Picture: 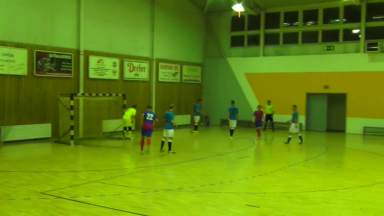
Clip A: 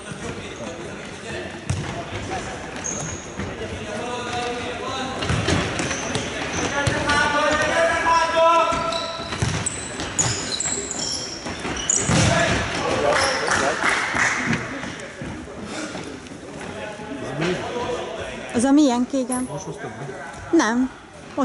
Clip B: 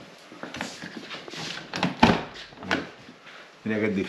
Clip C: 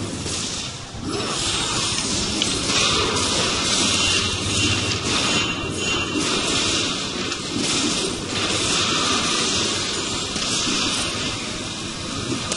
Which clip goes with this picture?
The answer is A